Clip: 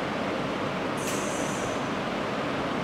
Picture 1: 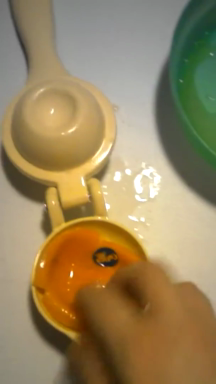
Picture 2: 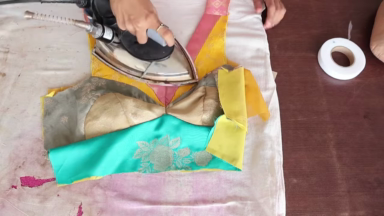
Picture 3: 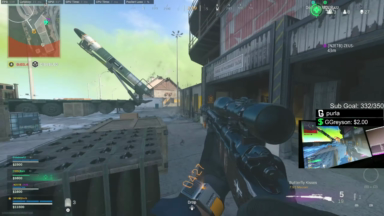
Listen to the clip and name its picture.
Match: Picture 2